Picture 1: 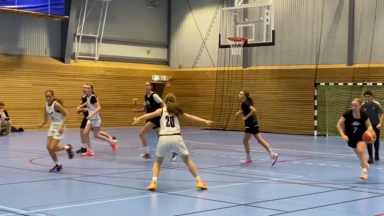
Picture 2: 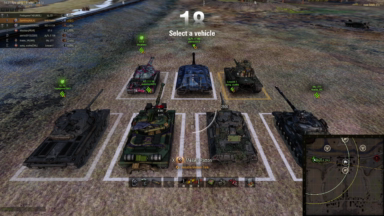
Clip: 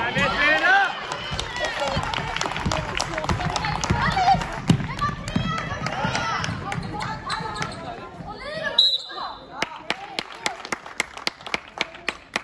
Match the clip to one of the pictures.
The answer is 1